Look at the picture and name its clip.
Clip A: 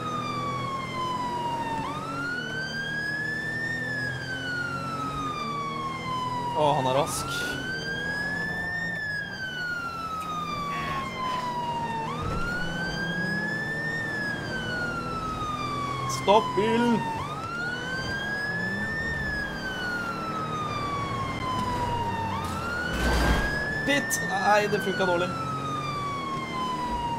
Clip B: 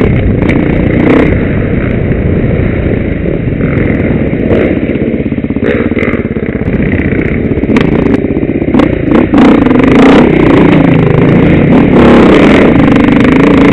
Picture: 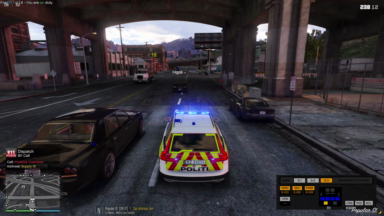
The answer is A